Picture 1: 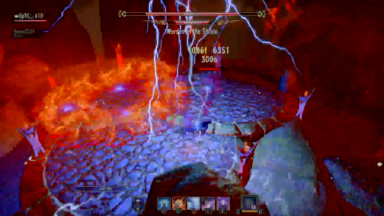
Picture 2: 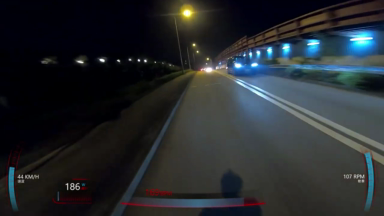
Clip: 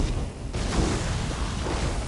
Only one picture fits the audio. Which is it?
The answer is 1